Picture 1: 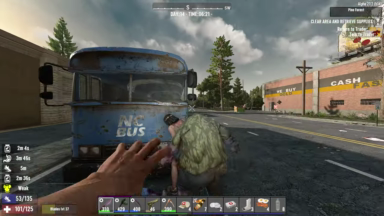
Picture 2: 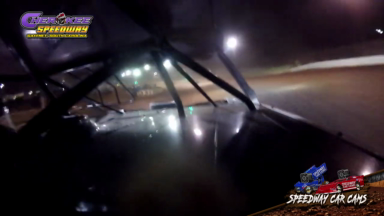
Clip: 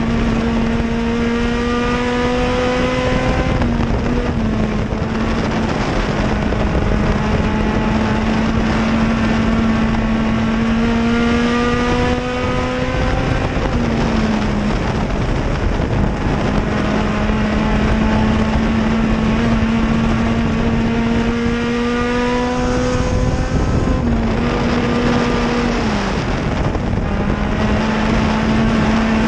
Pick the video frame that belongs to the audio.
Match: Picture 2